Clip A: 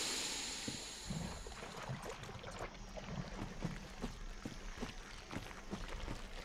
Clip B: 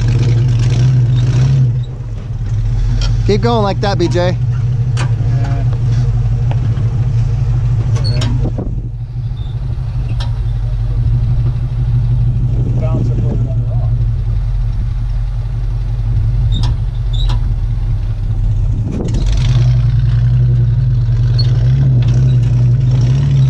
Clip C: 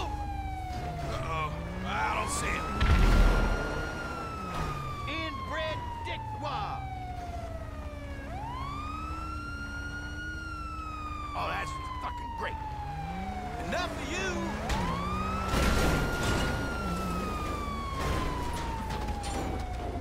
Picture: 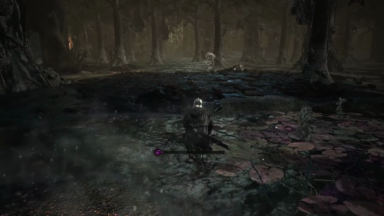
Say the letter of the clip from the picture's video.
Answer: A